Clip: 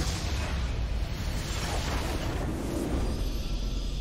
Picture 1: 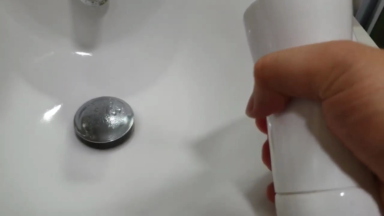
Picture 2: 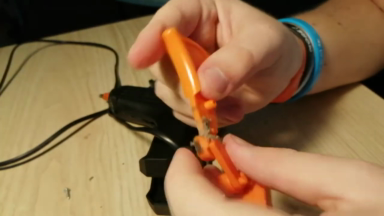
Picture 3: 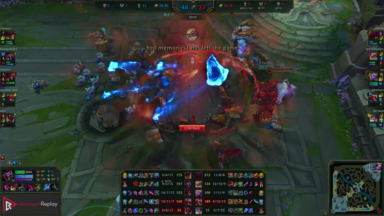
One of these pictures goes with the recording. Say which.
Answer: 3